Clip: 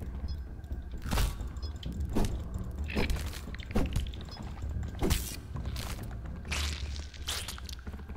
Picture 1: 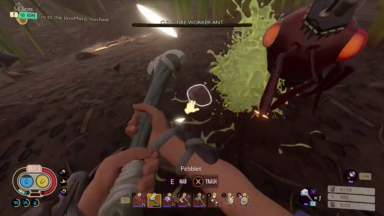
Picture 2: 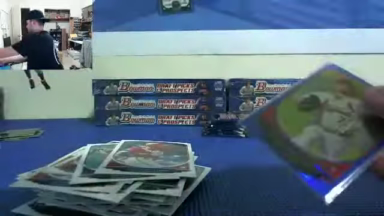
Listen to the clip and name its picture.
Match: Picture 1